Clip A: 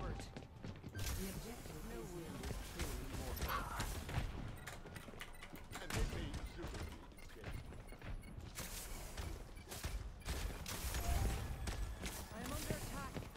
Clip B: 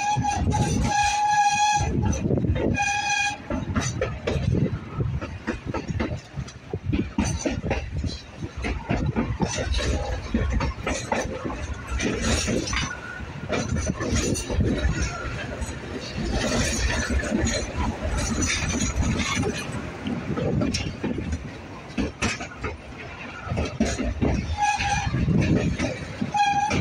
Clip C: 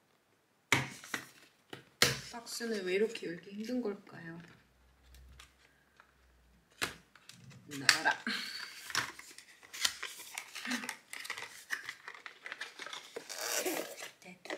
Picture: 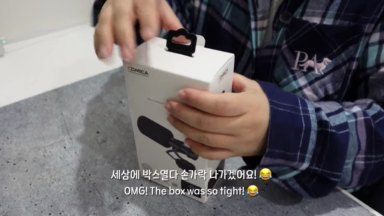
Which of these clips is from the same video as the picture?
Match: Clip C